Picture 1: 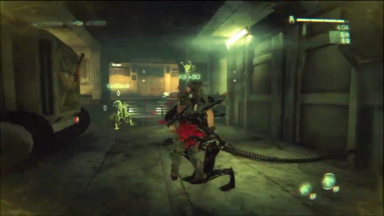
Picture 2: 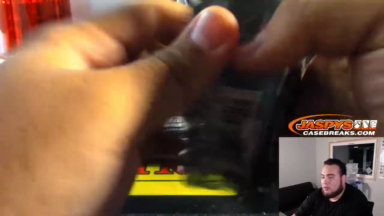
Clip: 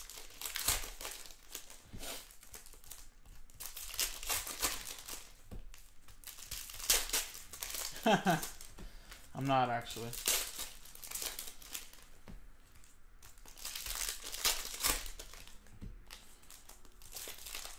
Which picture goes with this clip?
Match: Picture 2